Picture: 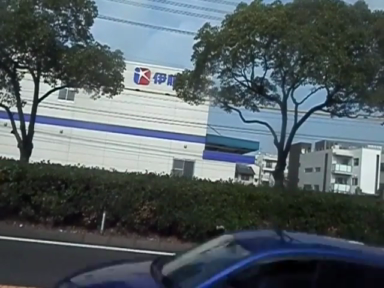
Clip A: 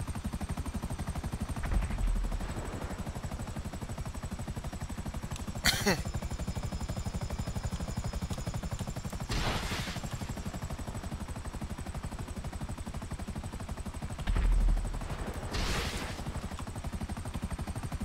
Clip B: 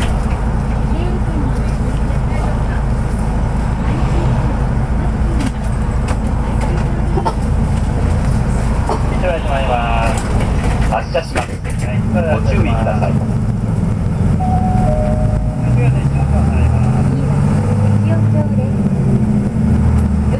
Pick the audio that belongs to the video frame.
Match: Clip B